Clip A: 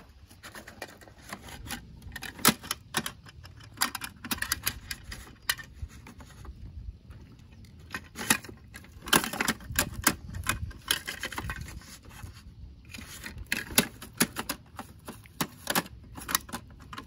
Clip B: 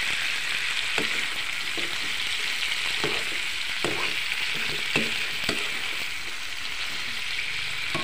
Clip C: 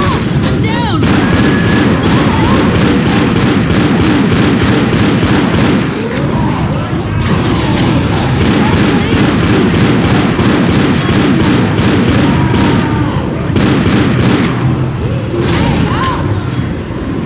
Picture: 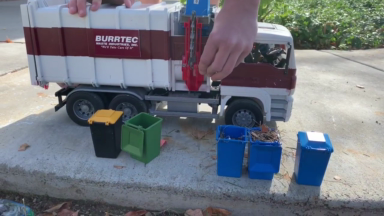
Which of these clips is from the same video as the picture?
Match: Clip A